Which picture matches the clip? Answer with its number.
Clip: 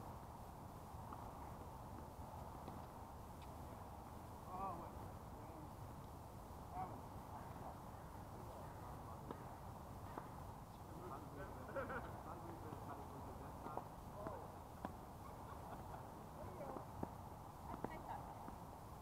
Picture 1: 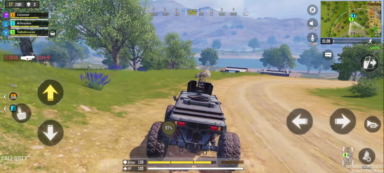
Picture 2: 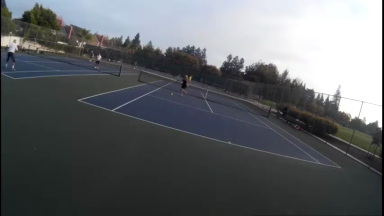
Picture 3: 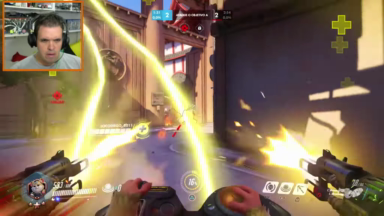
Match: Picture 2